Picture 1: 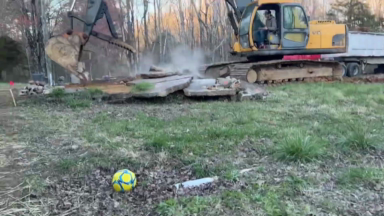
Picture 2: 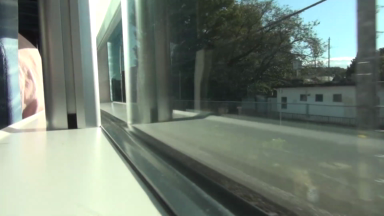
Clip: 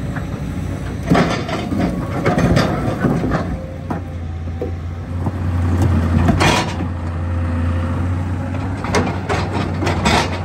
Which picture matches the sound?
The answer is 1